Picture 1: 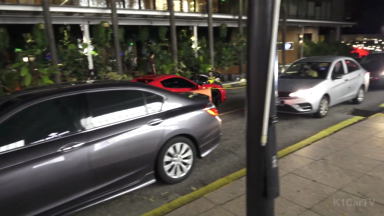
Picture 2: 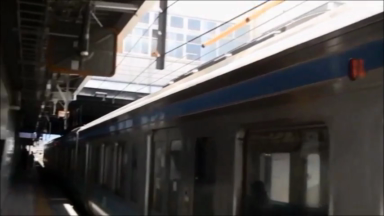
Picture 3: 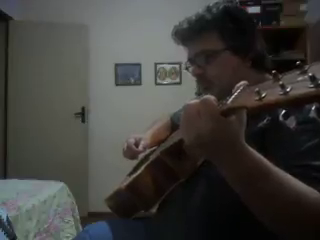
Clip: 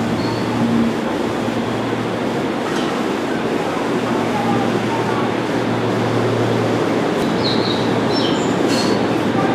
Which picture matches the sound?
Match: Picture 2